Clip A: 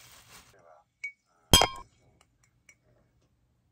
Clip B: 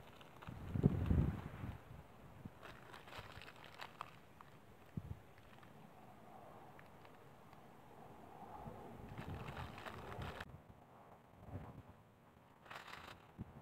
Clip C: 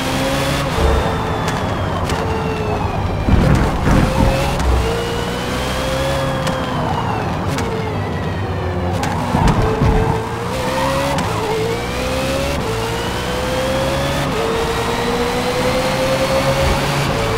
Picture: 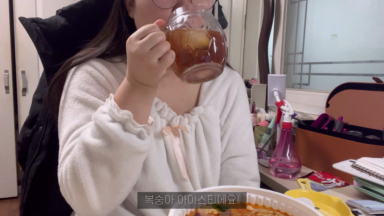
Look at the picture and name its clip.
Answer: A